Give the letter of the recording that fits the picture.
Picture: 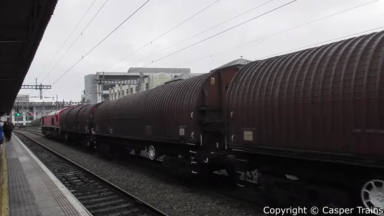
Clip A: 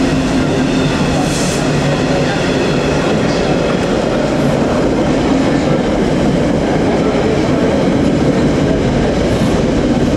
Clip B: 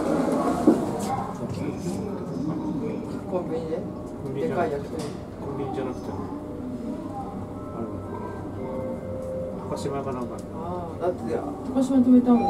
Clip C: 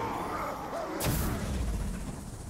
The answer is A